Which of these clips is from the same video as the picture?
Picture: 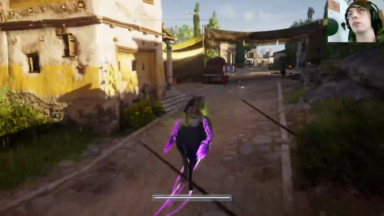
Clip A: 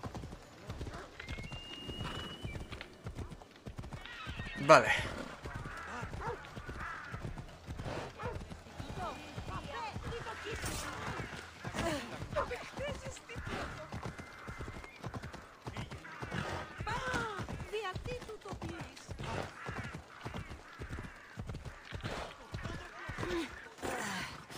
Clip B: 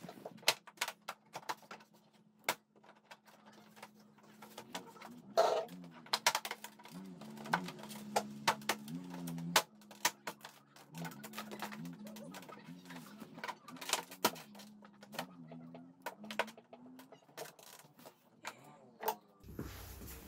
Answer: A